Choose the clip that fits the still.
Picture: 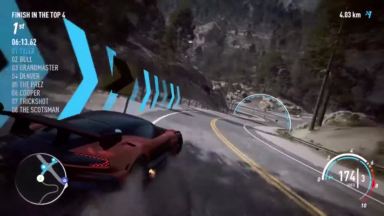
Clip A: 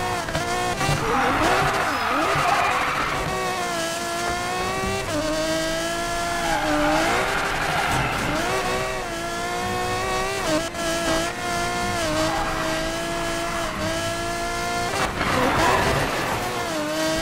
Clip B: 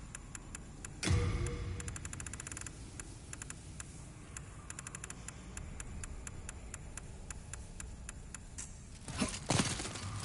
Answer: A